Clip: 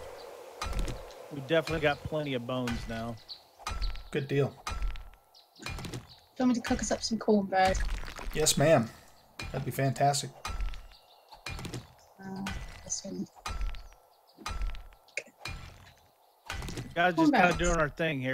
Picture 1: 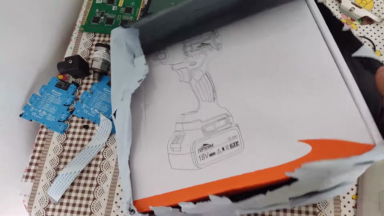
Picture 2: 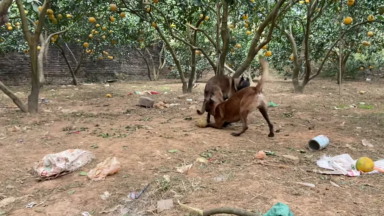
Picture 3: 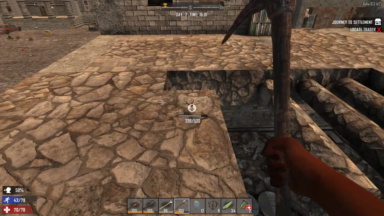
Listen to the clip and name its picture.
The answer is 3